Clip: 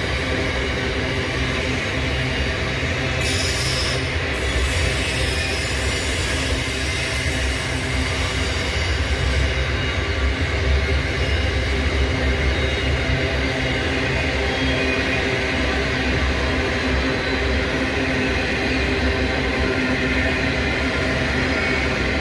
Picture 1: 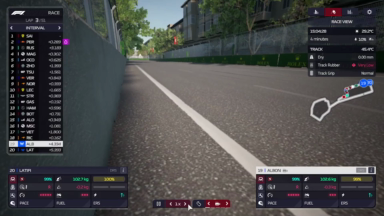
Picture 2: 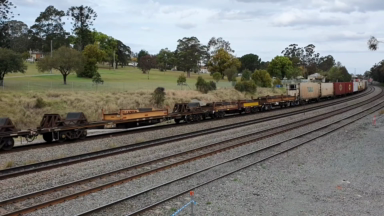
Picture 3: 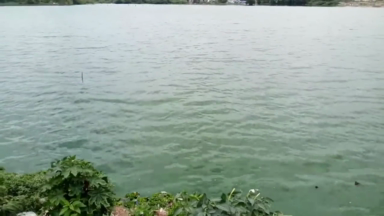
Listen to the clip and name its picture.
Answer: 2